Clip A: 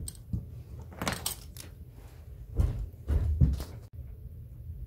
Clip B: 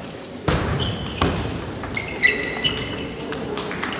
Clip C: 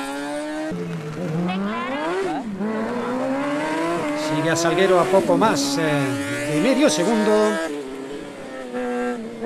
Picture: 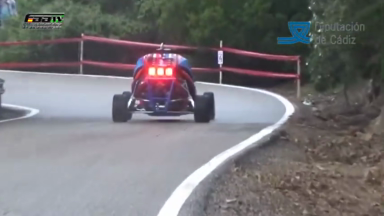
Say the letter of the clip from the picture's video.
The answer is C